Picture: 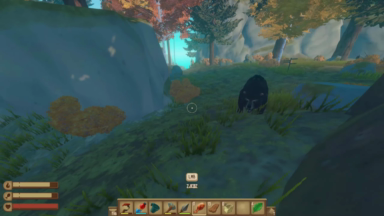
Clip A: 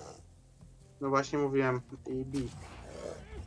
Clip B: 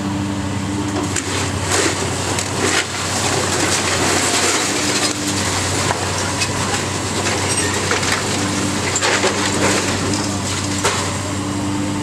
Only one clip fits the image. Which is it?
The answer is A